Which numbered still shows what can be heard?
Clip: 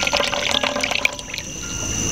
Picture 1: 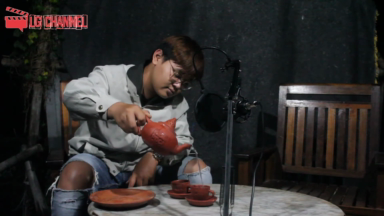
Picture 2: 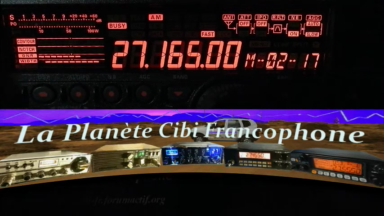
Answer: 1